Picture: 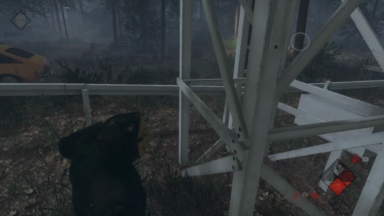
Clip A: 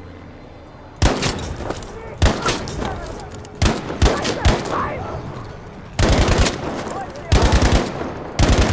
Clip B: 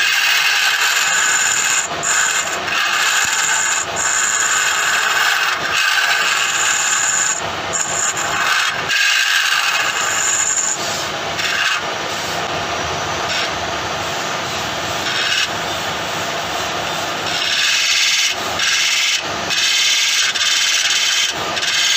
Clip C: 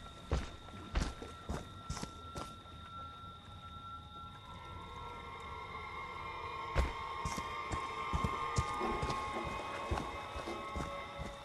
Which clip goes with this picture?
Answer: C